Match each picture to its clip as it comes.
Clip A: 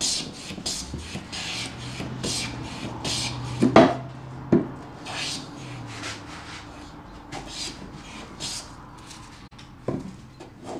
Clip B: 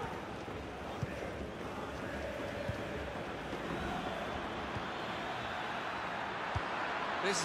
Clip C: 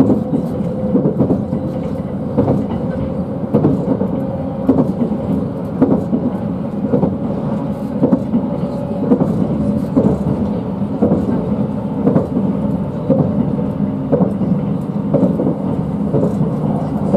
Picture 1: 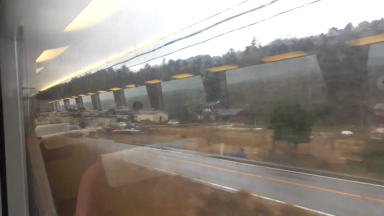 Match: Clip C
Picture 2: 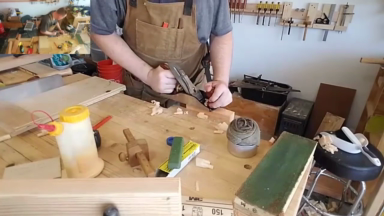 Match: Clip A